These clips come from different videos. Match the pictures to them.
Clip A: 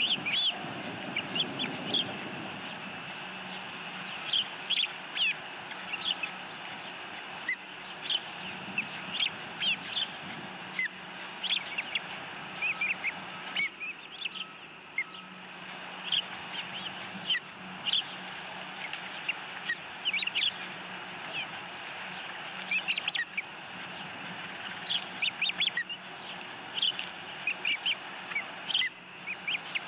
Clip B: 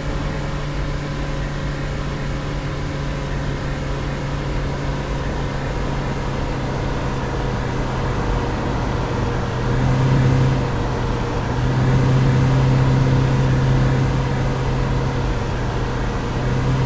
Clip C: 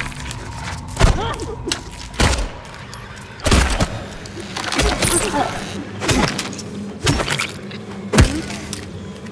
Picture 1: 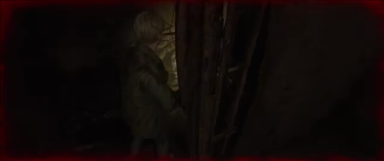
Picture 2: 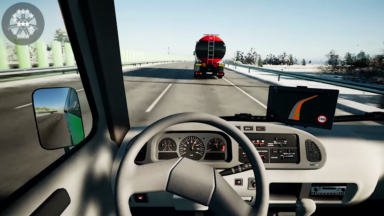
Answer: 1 C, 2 B